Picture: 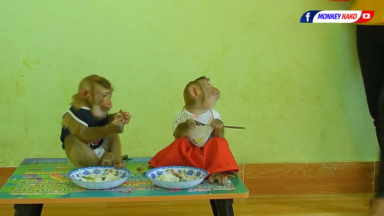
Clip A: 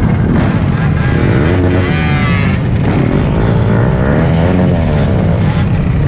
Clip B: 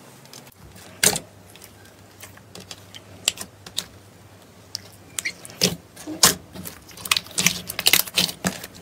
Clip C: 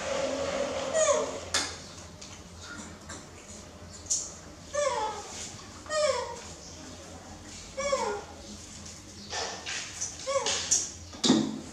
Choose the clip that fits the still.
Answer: C